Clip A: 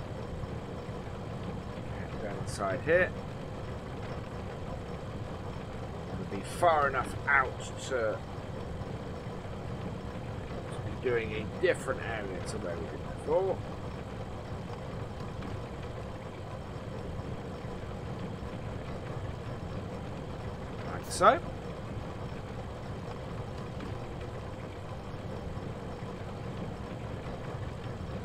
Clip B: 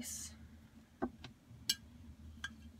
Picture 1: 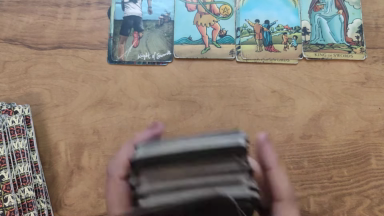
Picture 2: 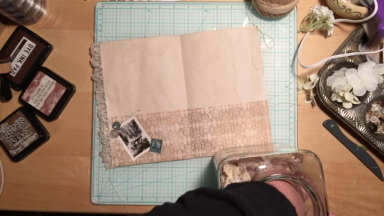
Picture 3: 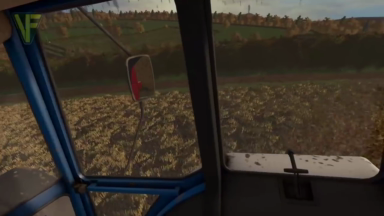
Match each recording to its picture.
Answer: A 3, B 2